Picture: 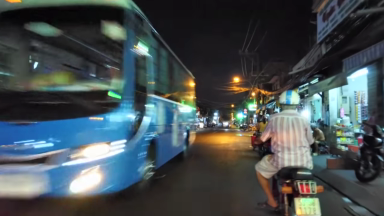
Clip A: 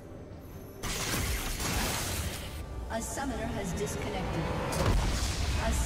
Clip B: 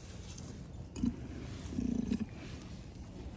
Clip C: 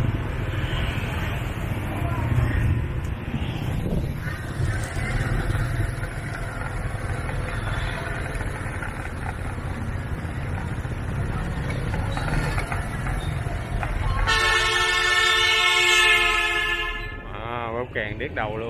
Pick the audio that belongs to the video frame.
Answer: C